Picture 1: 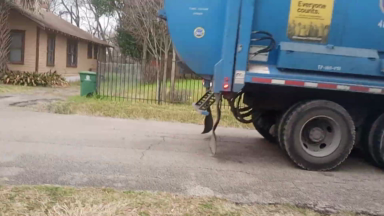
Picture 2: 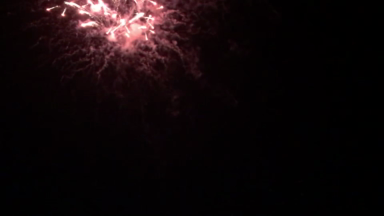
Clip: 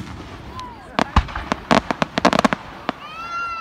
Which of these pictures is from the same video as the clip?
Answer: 2